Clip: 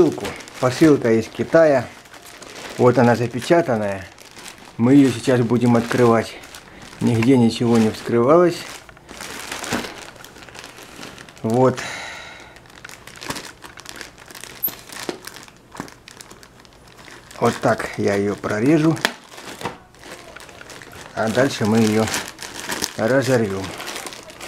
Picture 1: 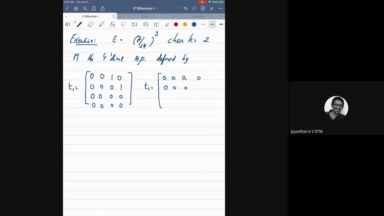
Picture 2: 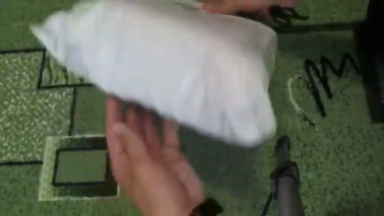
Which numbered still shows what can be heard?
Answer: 2